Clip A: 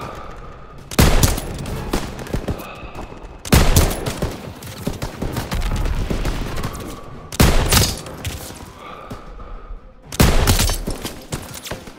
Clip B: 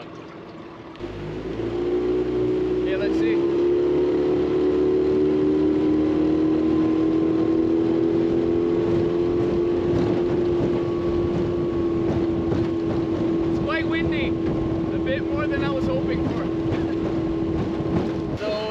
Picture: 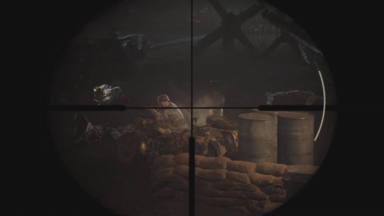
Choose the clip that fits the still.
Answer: A